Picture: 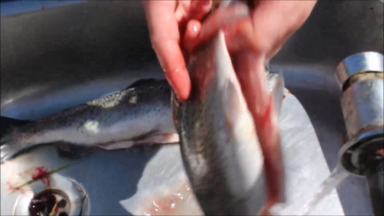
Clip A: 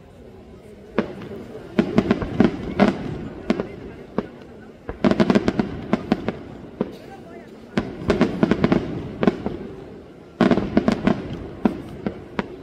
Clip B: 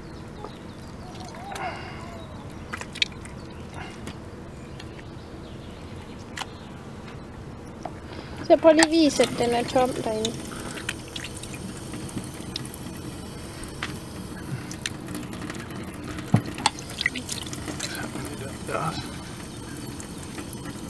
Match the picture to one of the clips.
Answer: B